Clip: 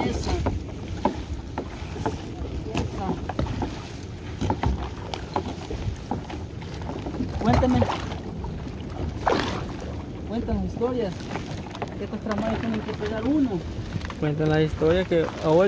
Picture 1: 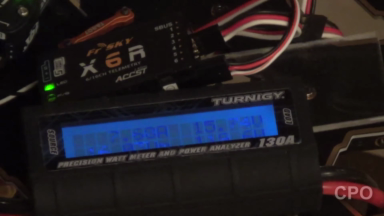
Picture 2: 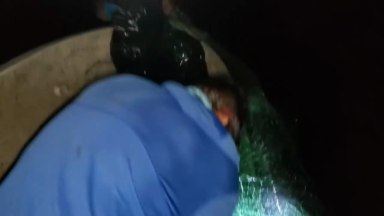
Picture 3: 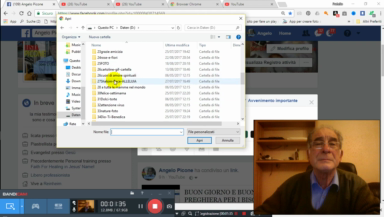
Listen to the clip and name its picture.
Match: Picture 2